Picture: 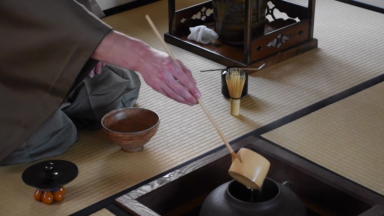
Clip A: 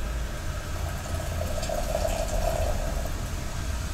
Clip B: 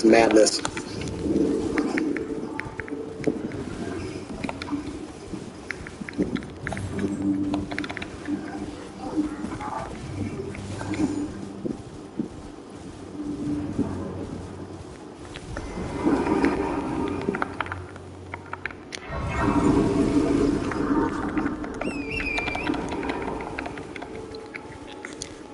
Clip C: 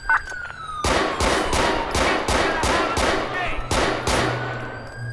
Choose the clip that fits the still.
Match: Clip A